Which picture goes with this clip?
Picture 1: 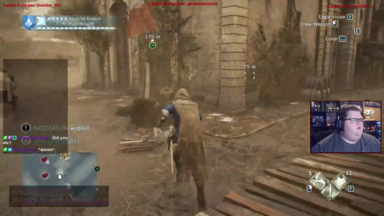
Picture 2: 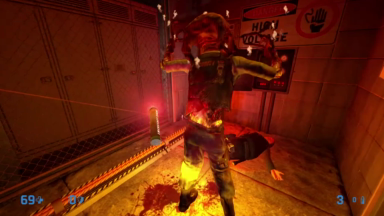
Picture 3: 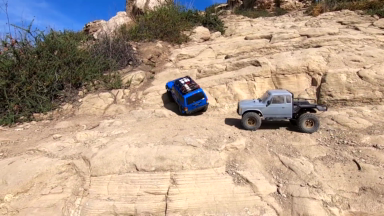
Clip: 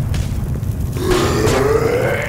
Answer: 2